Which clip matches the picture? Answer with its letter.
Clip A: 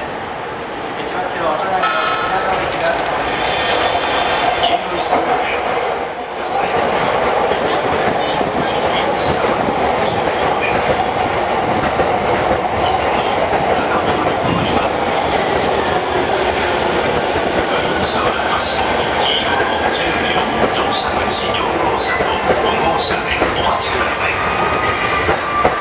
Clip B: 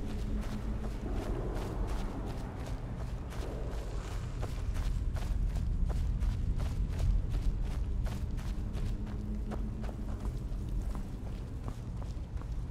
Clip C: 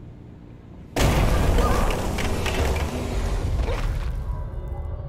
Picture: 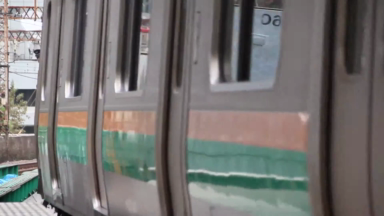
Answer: A